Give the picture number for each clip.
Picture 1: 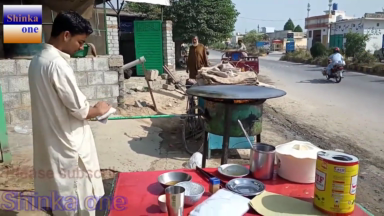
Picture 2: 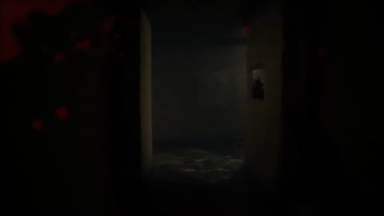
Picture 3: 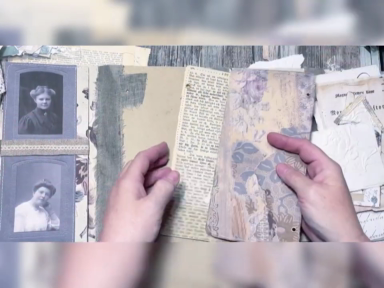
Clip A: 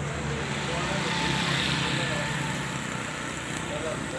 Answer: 1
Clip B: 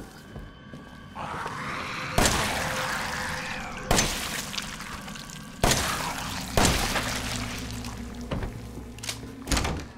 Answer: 2